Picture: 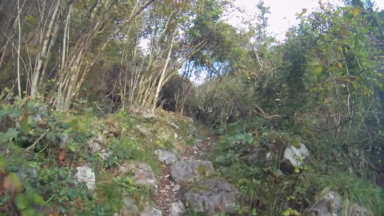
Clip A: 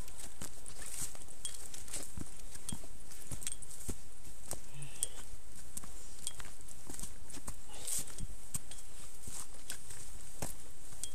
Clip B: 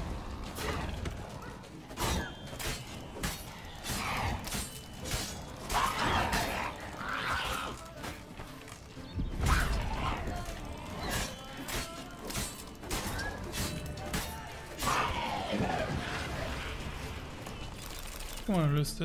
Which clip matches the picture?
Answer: A